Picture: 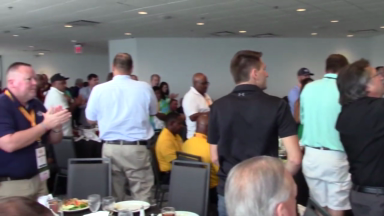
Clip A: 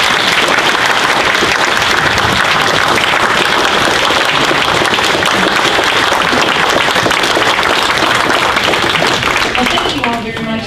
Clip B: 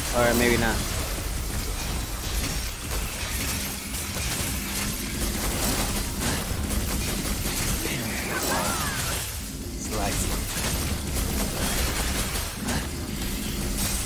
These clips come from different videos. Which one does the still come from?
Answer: A